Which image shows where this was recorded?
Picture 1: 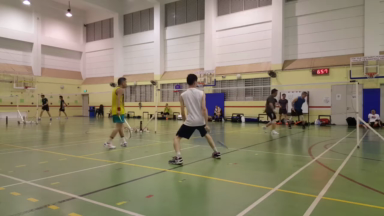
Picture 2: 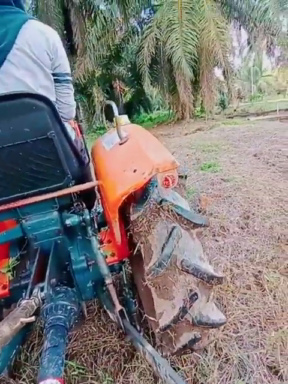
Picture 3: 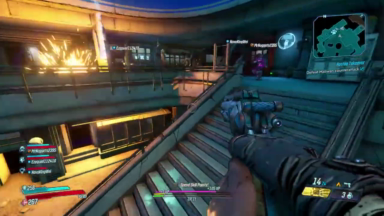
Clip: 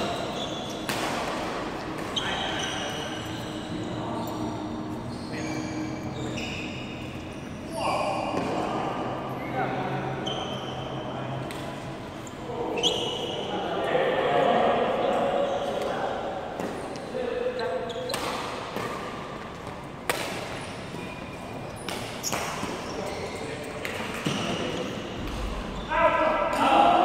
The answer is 1